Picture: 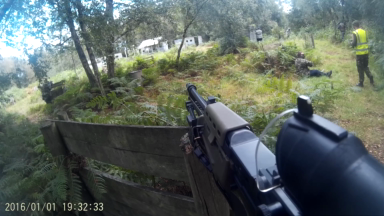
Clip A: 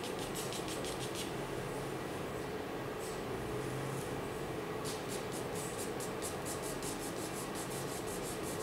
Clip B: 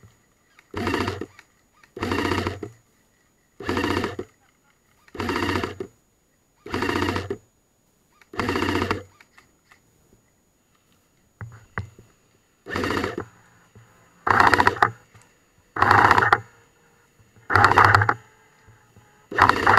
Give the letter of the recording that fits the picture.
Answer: B